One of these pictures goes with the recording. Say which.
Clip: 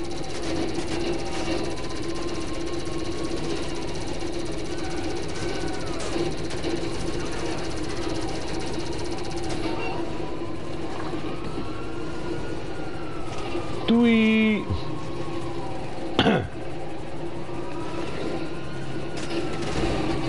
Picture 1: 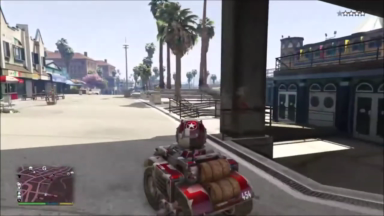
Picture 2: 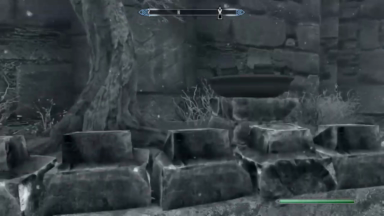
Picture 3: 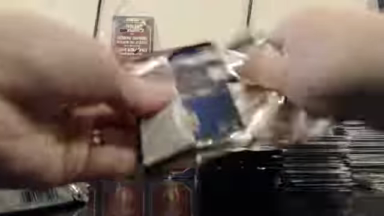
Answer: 1